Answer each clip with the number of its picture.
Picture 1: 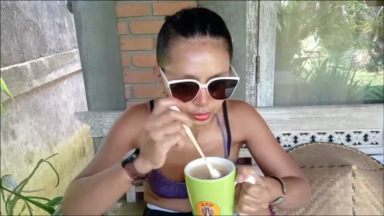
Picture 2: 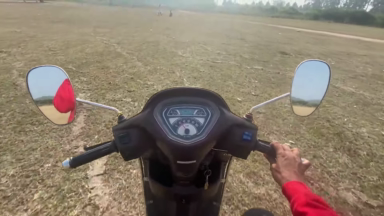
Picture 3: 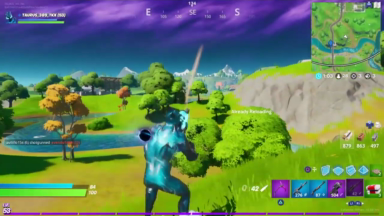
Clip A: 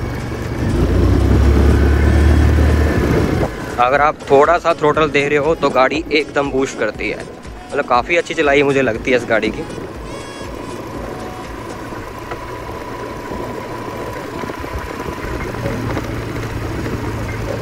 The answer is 2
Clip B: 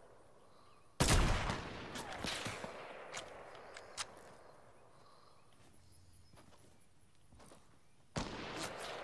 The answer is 3